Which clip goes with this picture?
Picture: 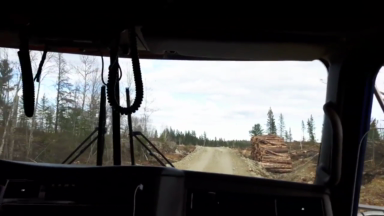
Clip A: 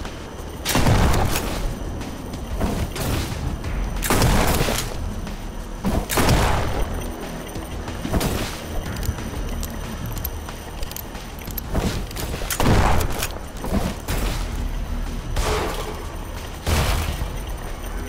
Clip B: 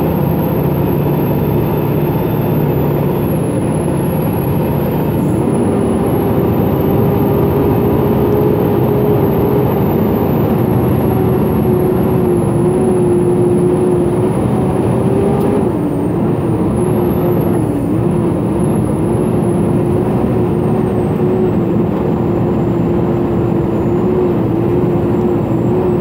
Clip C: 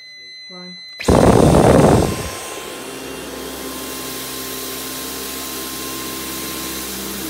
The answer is B